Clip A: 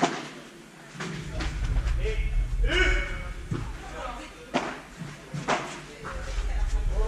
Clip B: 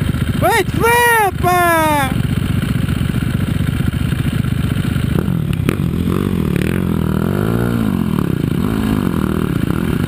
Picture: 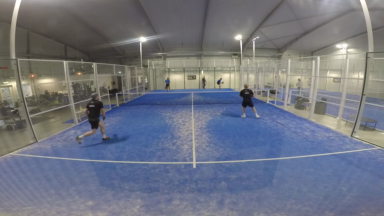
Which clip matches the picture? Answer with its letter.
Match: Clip A